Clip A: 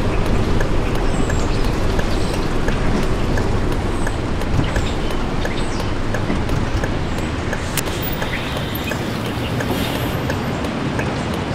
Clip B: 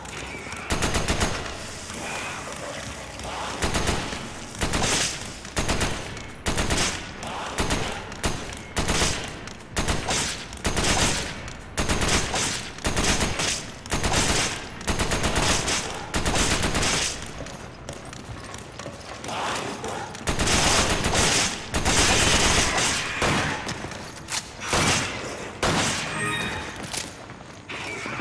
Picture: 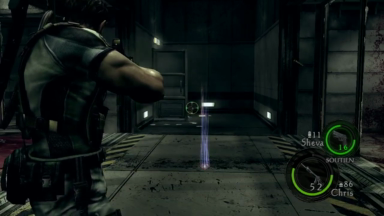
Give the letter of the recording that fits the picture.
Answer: B